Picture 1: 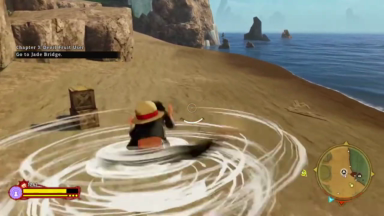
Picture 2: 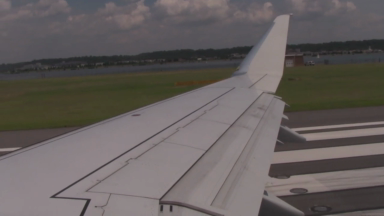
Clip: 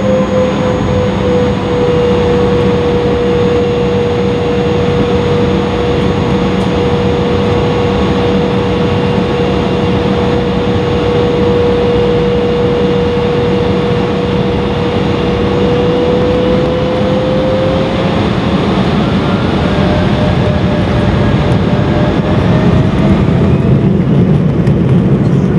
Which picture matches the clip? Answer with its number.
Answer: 2